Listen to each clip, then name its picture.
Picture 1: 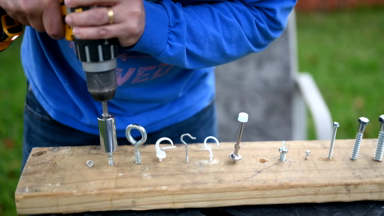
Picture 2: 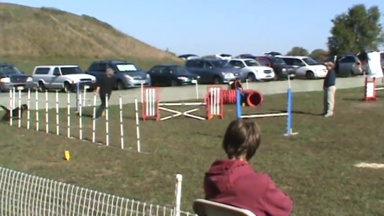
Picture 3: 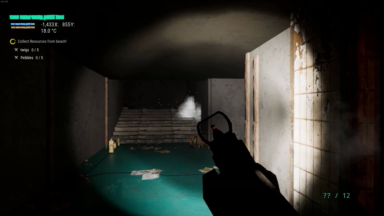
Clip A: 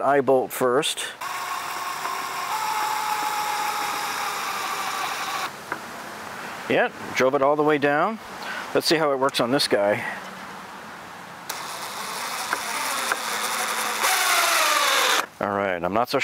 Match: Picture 1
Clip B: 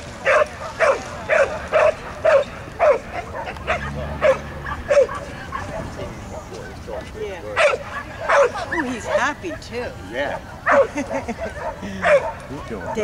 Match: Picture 2